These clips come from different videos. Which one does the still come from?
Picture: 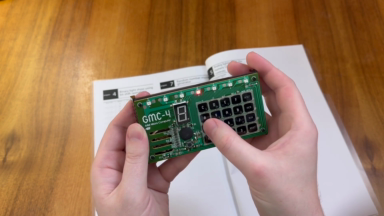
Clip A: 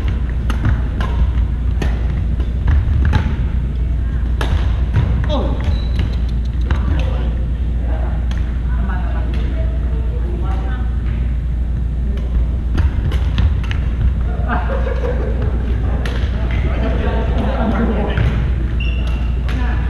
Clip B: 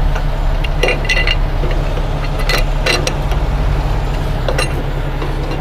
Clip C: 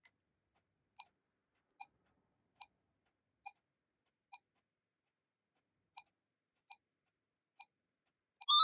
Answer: C